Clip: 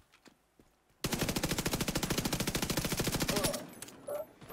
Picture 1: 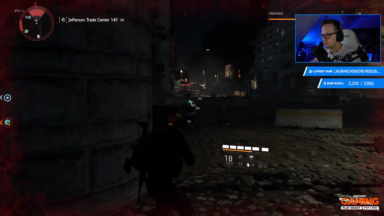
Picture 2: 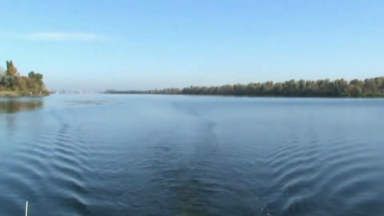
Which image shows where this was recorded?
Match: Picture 1